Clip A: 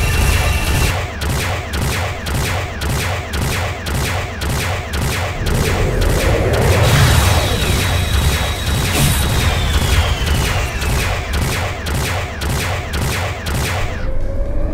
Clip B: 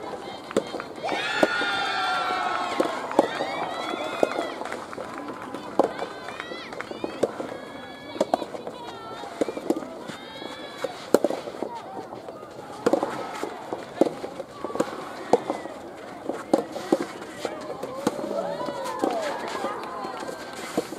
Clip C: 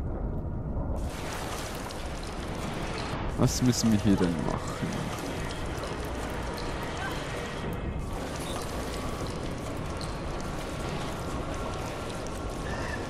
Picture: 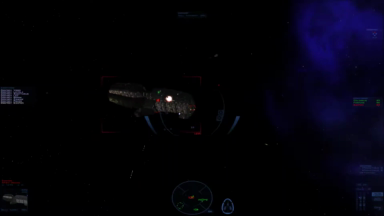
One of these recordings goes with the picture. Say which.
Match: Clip A